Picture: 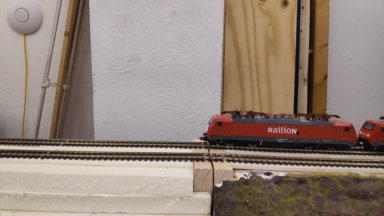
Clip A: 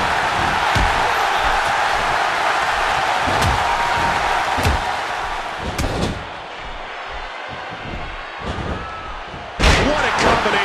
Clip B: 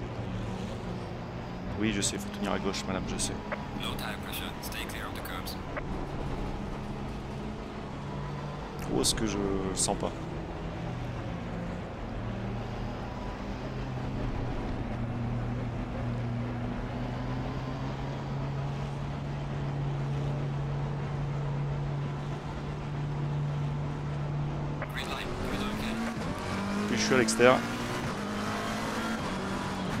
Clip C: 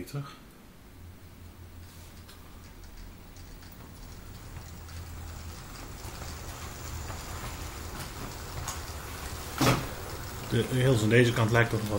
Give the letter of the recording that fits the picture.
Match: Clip C